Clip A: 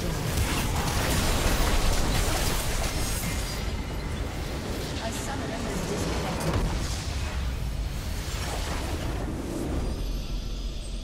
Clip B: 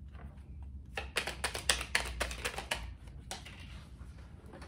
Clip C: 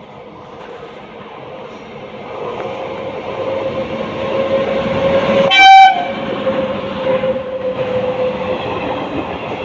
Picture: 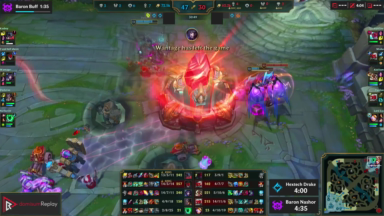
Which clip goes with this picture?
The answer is A